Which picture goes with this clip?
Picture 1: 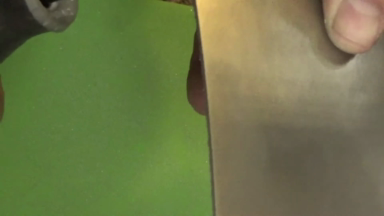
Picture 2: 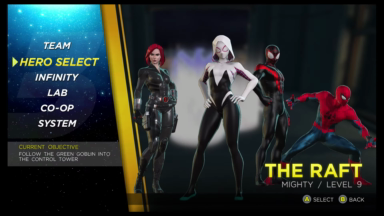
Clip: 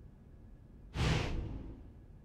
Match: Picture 2